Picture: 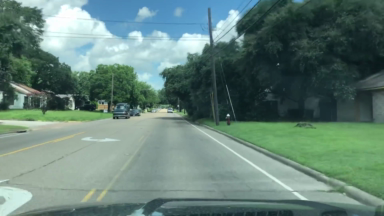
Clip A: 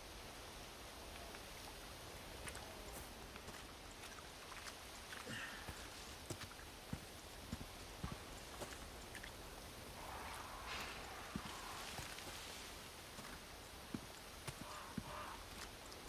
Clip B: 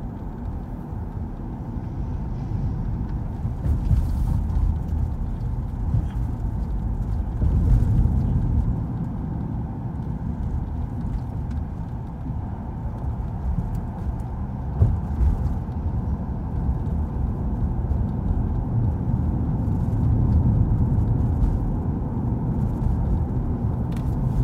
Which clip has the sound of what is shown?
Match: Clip B